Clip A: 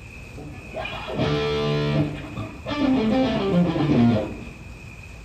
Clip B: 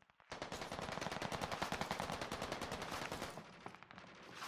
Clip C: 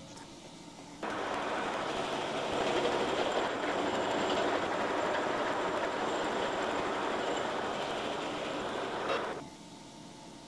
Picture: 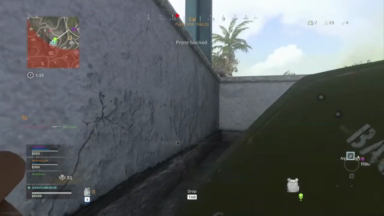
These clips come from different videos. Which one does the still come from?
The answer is B